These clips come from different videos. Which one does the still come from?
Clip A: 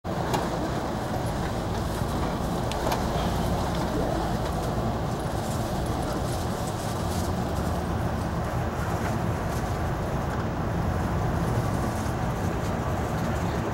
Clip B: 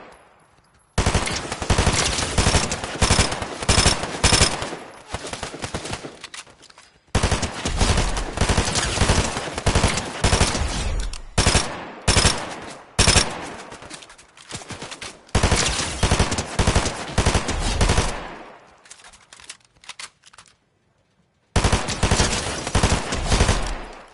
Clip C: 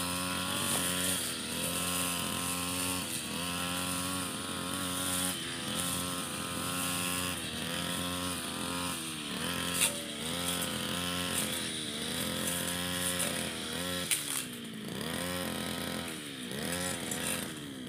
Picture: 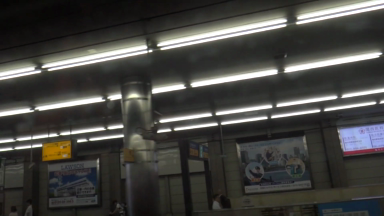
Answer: A